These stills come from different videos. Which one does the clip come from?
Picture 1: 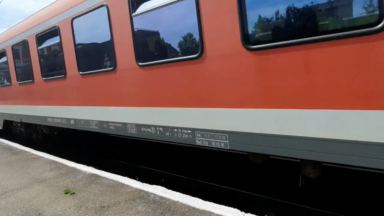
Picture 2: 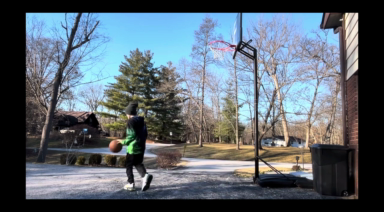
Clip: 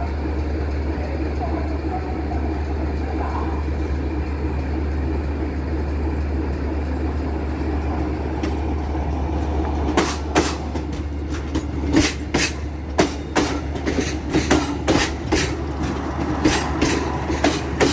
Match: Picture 1